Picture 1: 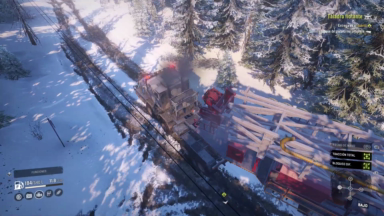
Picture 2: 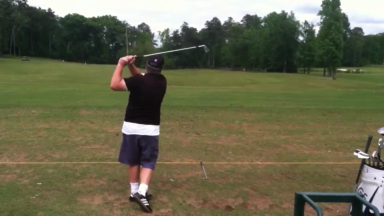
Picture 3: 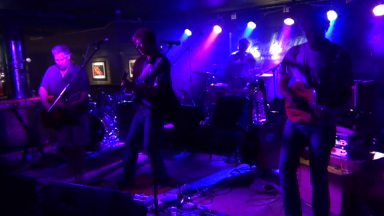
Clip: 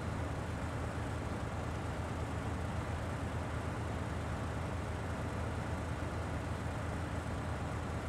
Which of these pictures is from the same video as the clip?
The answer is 1